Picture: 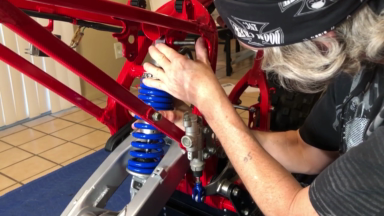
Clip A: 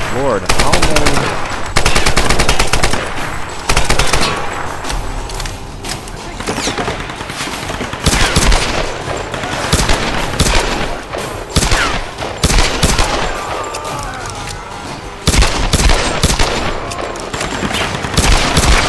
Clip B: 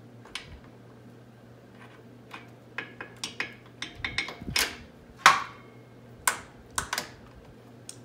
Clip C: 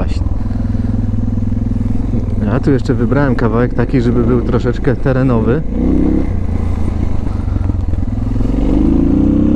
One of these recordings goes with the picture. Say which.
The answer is B